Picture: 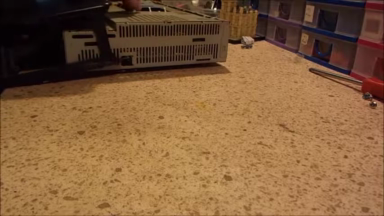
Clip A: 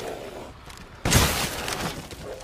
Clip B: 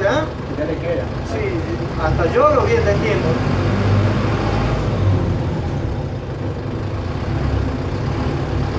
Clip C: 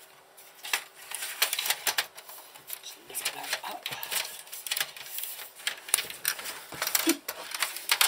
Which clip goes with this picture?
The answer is C